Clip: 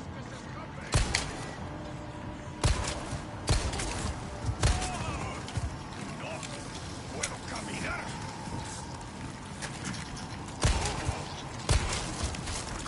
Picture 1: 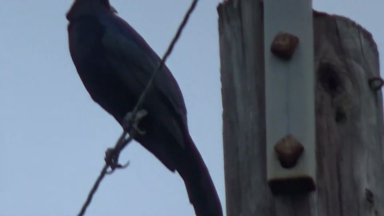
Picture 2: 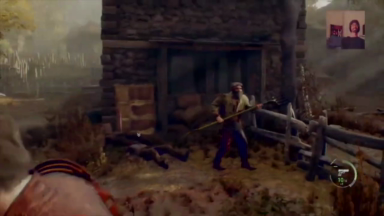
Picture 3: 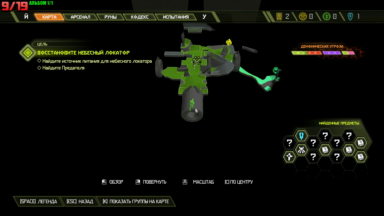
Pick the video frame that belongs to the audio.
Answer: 2